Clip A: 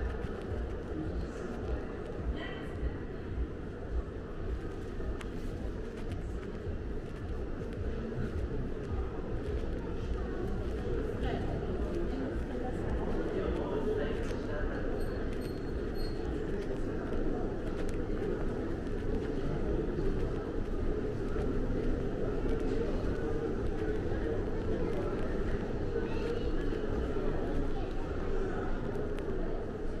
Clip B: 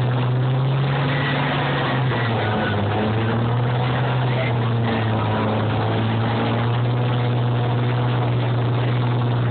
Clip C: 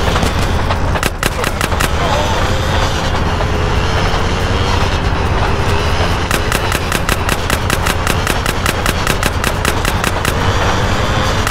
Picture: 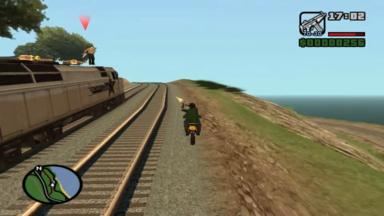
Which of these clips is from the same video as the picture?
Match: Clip C